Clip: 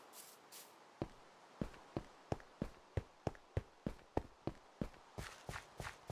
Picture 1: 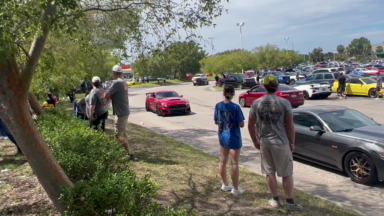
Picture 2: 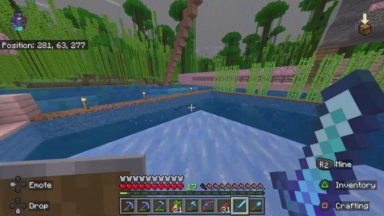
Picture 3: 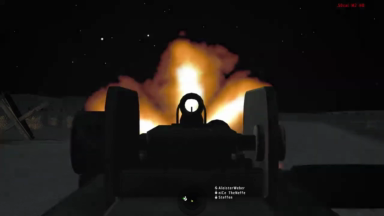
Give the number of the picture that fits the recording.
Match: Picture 2